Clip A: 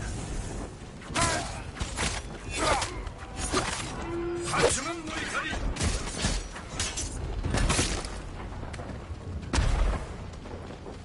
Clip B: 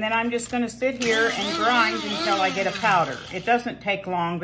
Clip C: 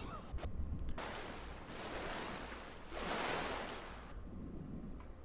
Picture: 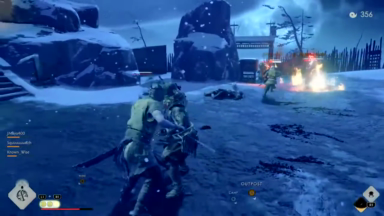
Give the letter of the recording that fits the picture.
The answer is A